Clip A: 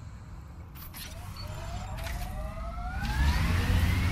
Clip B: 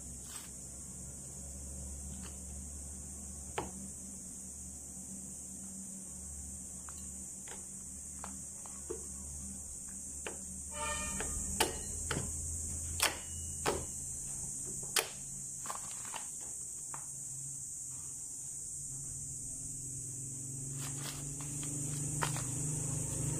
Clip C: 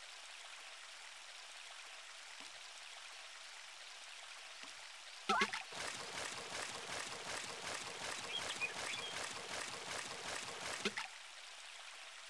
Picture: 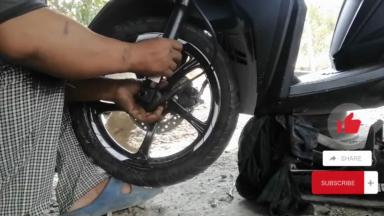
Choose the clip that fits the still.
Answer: B